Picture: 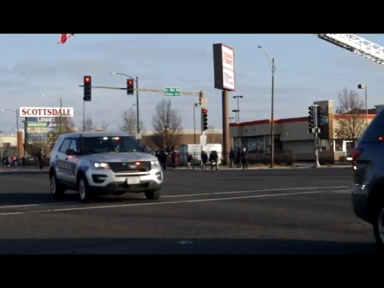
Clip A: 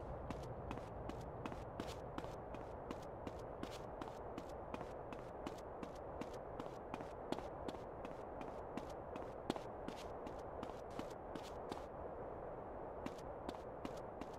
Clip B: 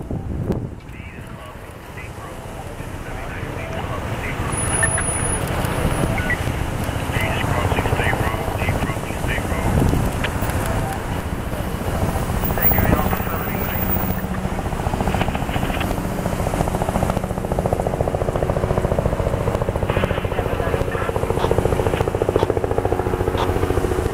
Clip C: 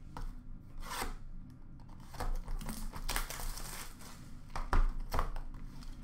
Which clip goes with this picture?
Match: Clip B